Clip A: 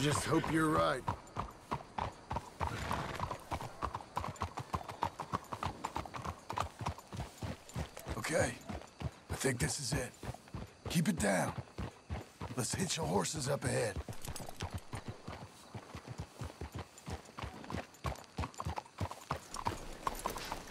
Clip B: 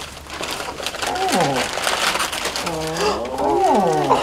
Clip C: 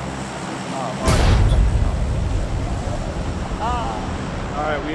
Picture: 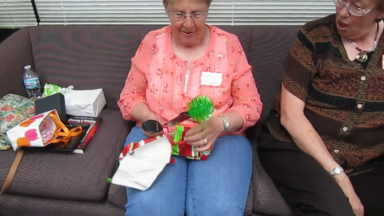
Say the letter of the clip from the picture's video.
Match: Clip B